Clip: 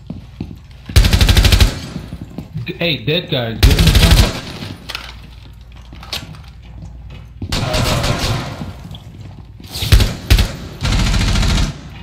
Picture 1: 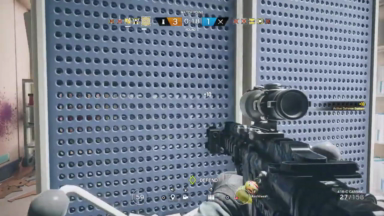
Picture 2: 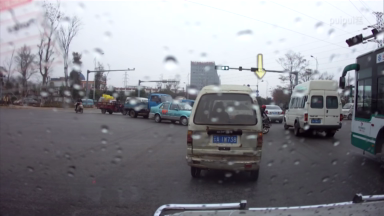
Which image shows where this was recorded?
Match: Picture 1